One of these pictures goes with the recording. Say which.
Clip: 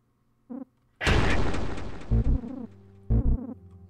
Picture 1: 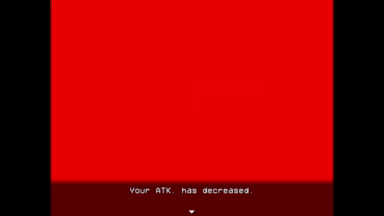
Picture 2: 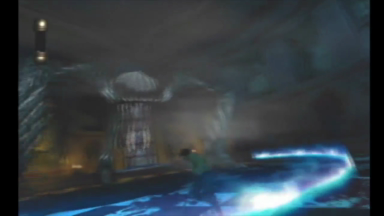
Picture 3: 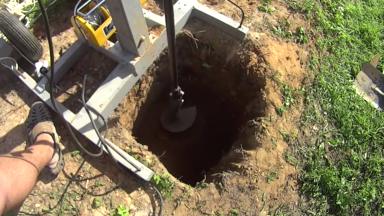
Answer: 1